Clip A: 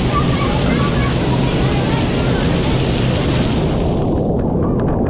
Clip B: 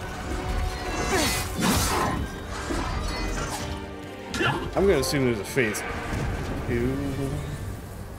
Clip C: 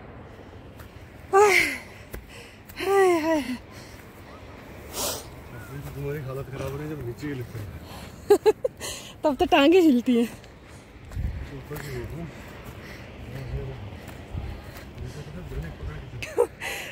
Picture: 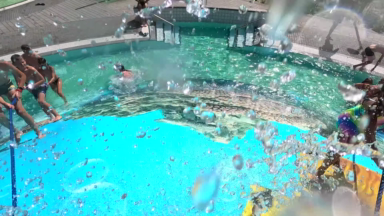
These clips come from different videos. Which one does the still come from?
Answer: A